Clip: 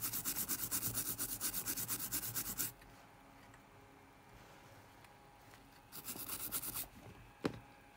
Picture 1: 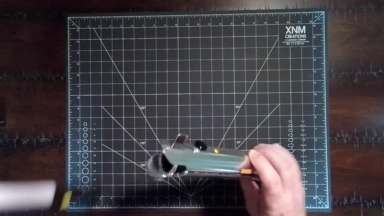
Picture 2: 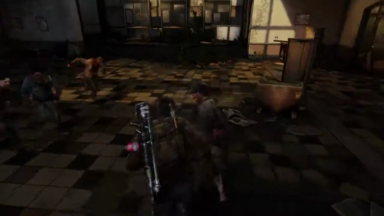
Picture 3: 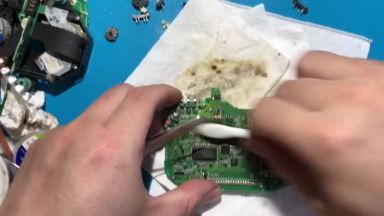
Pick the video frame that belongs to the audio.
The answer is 3